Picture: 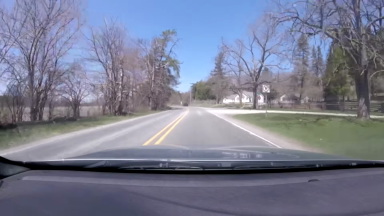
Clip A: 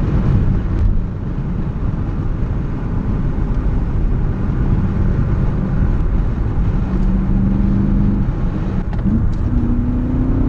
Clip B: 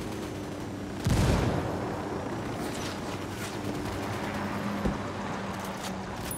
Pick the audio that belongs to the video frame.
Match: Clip A